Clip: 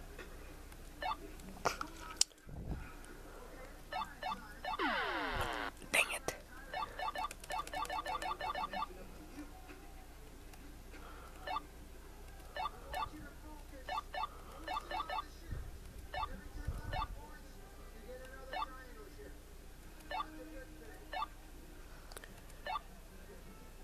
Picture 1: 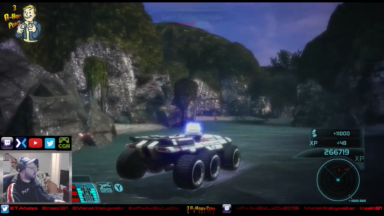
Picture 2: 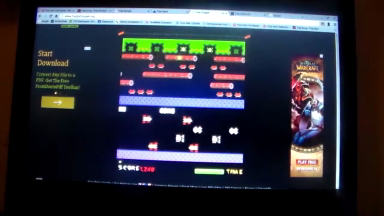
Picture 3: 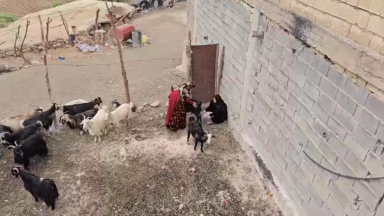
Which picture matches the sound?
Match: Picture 2